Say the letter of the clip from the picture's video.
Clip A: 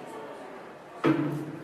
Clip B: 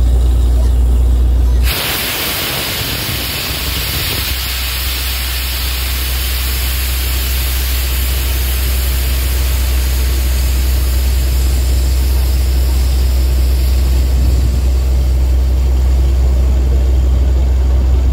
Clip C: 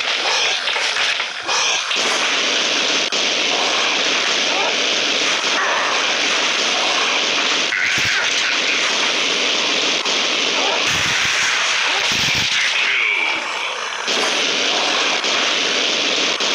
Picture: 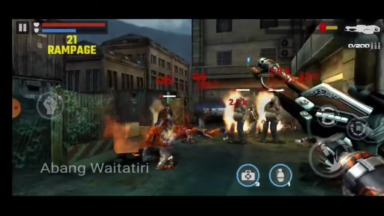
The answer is C